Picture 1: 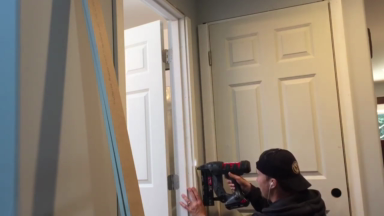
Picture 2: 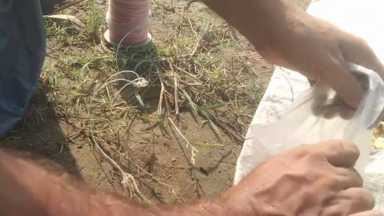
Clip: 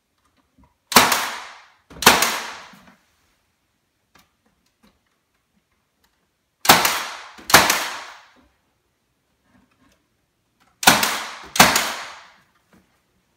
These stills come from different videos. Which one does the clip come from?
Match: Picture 1